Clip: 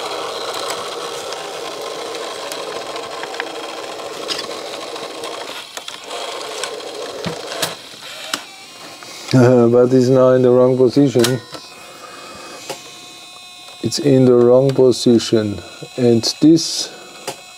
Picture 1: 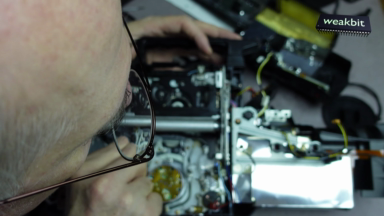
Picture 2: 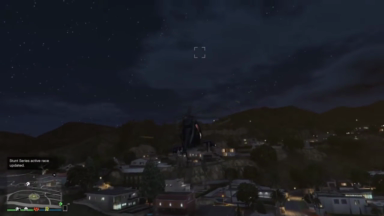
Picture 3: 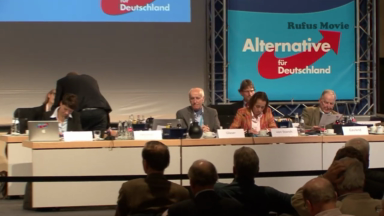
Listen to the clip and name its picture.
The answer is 1